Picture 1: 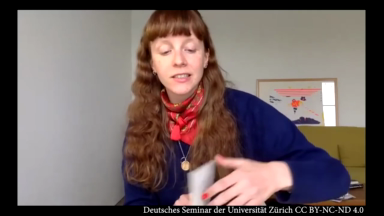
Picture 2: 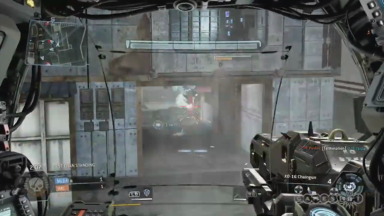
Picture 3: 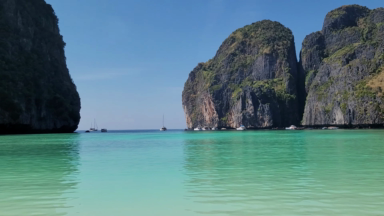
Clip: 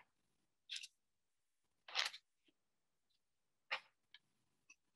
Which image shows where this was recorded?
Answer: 1